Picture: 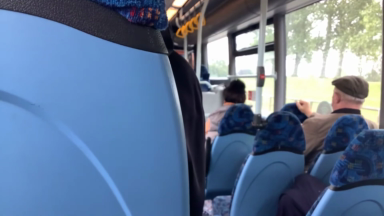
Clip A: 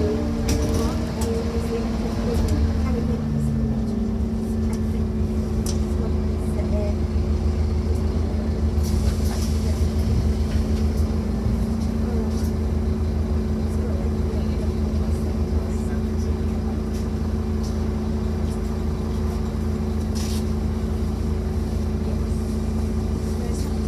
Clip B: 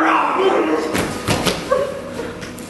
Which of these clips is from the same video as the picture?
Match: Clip A